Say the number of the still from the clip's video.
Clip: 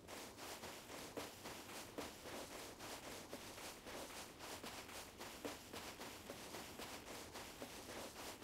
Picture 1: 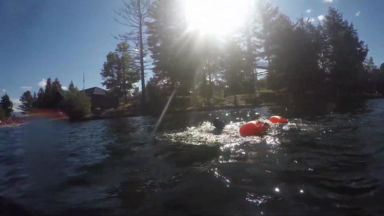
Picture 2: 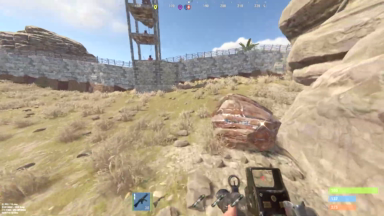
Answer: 2